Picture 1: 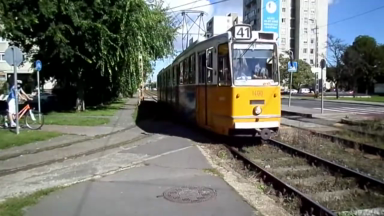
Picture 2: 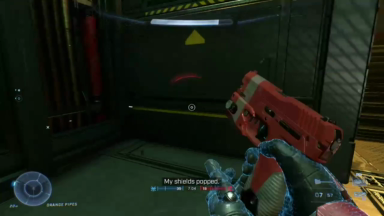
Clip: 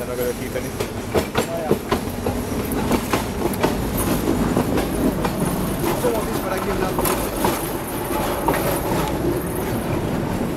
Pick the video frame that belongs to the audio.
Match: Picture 1